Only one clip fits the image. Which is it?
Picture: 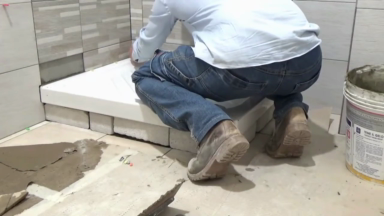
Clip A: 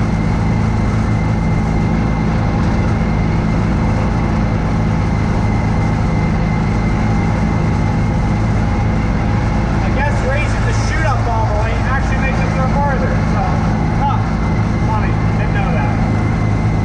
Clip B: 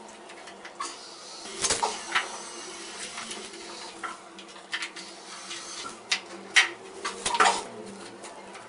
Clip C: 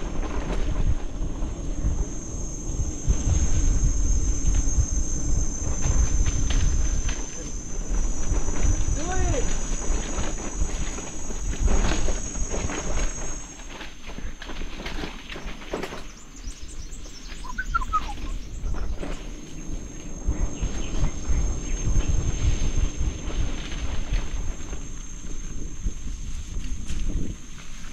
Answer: B